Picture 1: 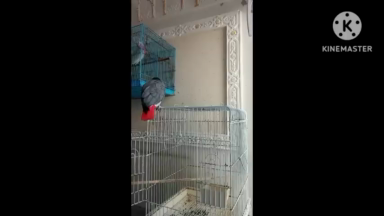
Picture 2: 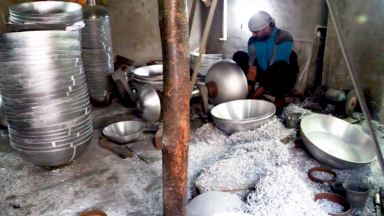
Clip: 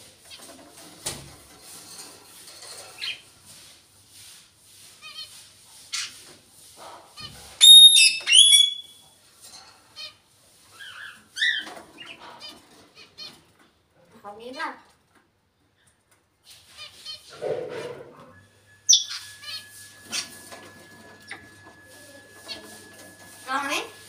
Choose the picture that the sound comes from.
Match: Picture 1